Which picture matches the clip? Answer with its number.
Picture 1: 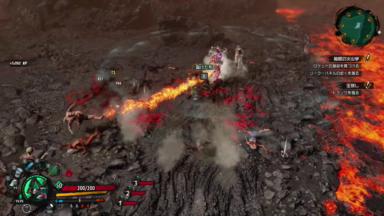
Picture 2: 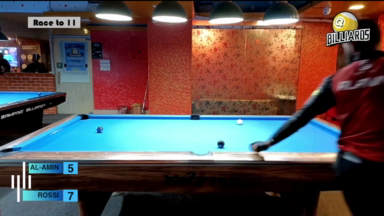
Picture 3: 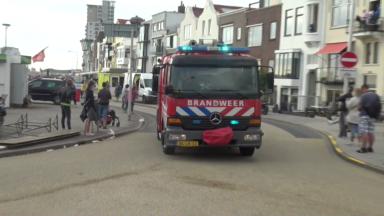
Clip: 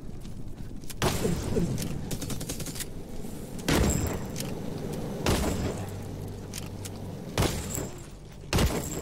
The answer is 1